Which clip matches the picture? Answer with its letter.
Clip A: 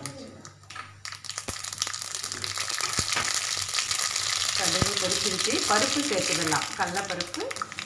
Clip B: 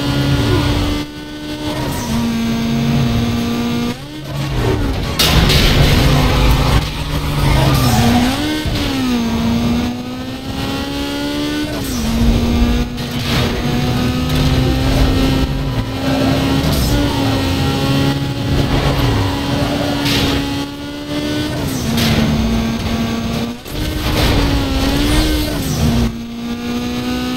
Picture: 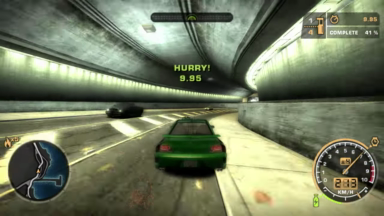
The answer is B